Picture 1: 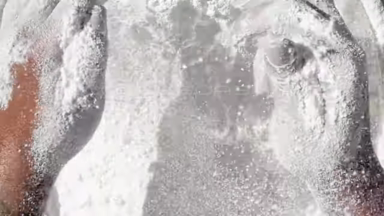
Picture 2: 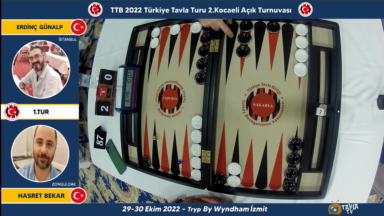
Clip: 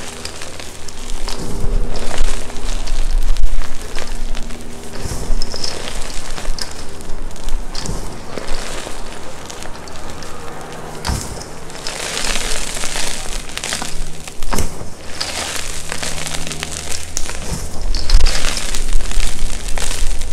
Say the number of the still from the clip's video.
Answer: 1